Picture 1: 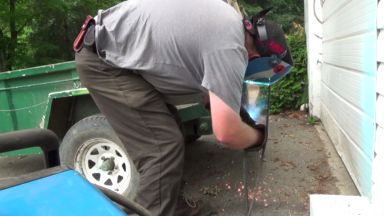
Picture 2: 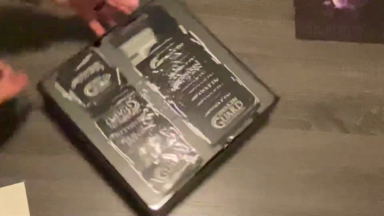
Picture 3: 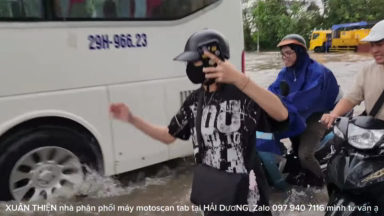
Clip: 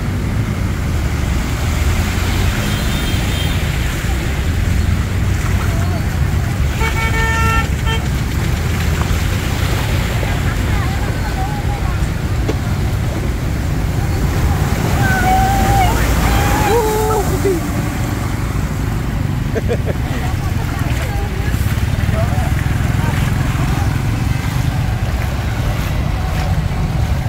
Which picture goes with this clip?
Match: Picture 3